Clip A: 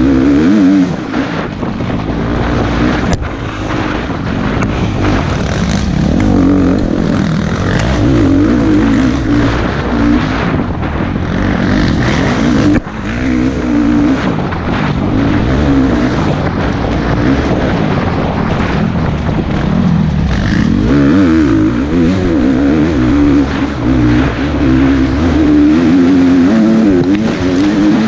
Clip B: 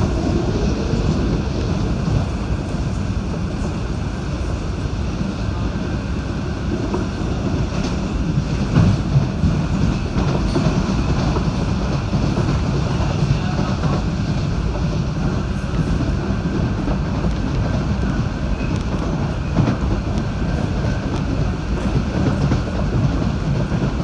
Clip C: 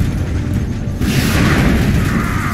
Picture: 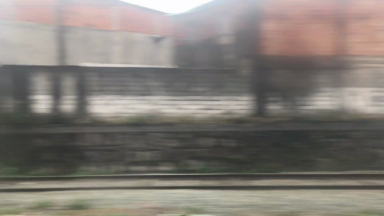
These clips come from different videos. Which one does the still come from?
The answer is B